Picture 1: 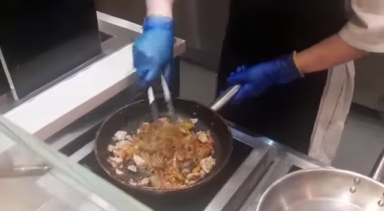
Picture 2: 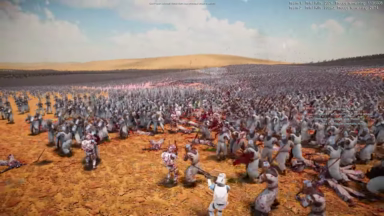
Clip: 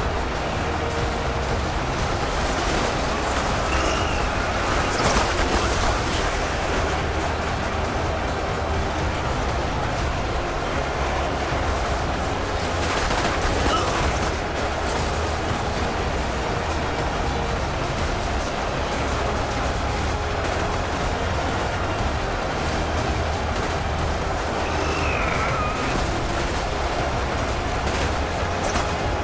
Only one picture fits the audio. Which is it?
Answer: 2